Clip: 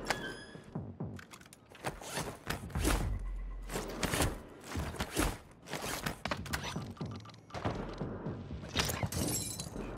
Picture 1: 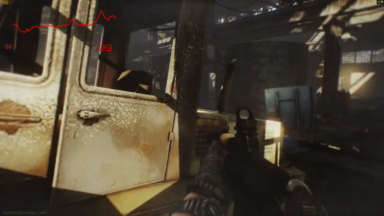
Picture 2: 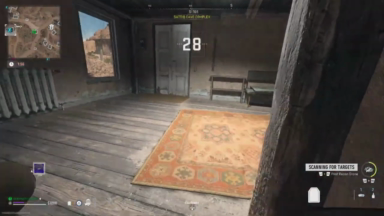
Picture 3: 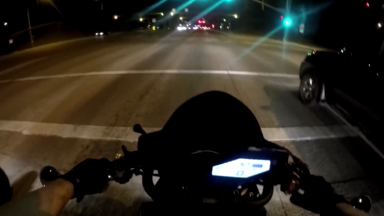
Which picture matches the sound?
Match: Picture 2